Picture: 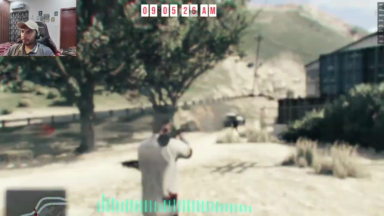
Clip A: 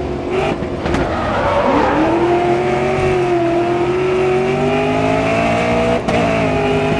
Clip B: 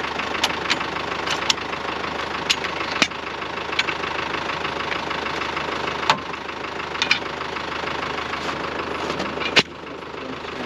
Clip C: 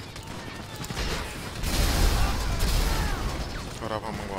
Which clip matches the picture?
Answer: C